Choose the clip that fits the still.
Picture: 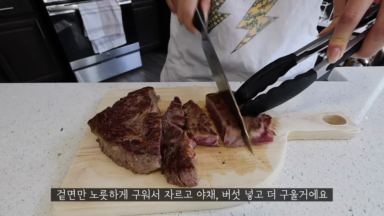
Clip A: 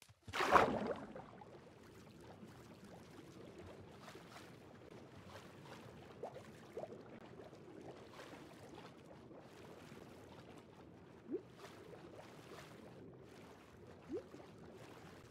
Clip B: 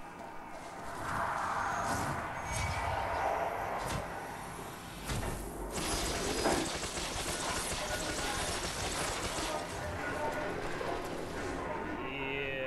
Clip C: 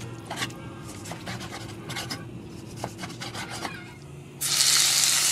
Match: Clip C